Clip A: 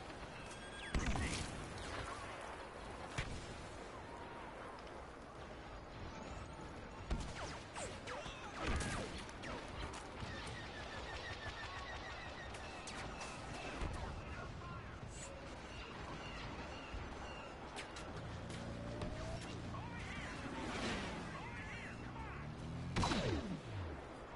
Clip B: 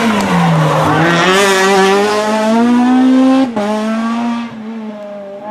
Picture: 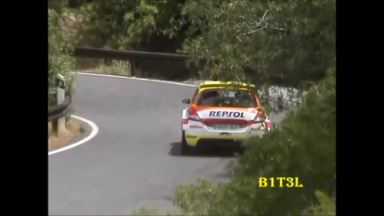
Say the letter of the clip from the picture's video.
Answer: B